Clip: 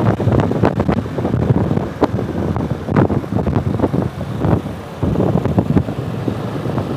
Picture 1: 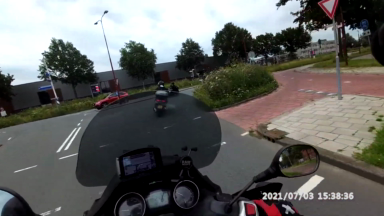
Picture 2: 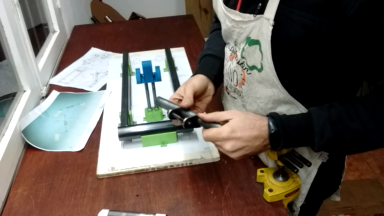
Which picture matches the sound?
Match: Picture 1